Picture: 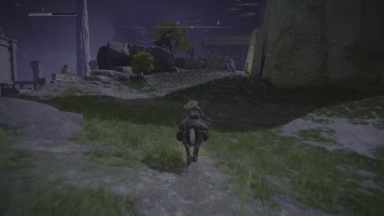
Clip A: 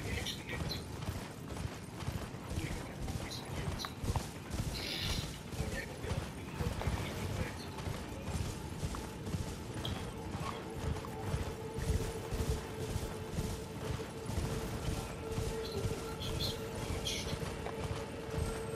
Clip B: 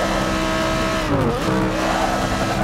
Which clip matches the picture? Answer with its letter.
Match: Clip A